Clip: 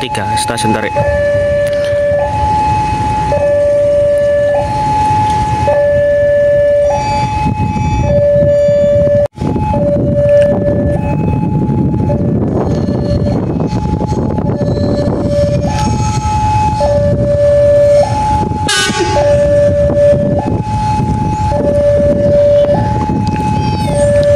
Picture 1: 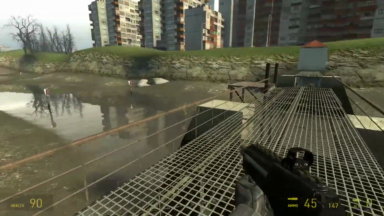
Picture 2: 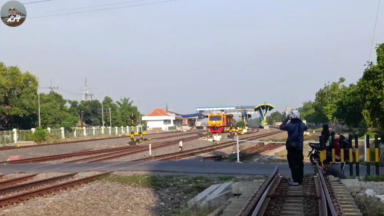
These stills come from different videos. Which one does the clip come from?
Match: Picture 2